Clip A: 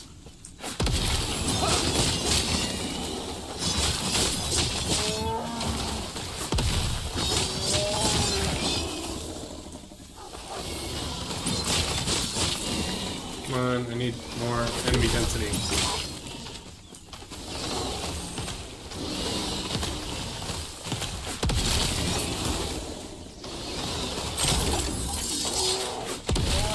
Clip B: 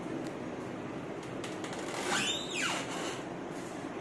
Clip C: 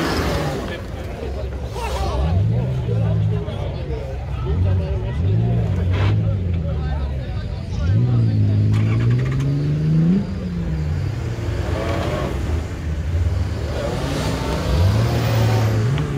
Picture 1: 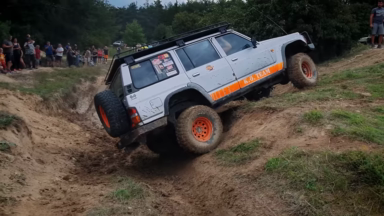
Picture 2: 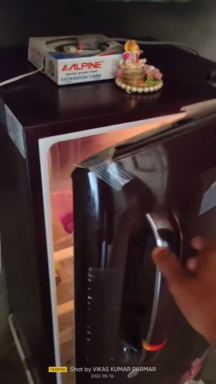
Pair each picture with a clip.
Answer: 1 C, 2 B